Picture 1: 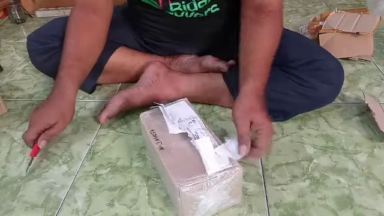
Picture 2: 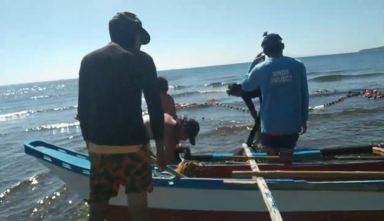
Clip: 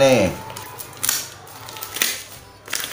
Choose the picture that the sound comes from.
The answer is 1